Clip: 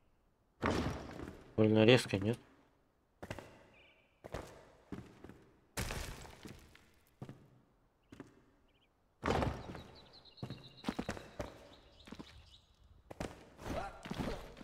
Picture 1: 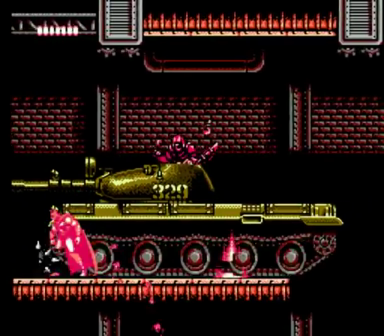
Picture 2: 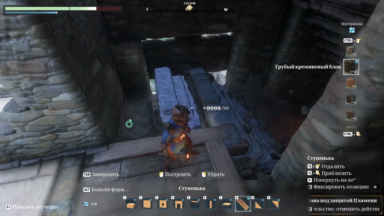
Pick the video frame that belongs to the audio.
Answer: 2